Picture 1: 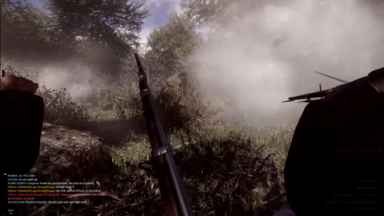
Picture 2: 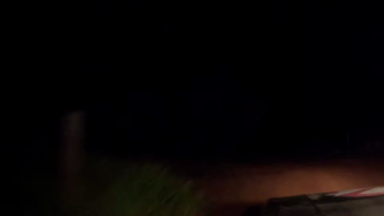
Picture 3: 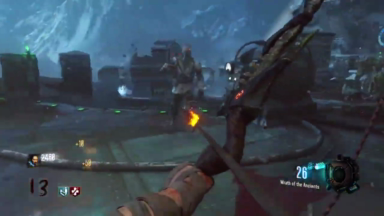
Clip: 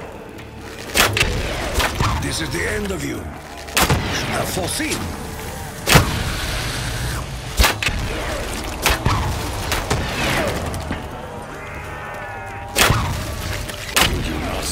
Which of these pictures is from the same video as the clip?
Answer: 3